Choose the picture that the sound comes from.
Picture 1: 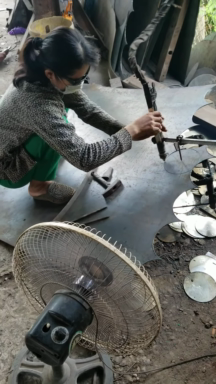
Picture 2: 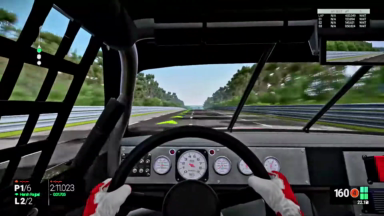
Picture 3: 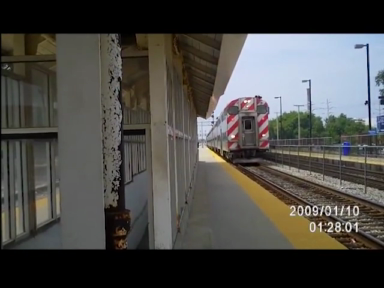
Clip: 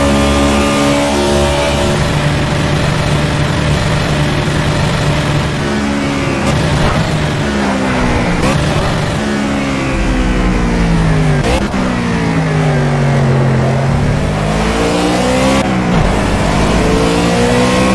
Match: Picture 2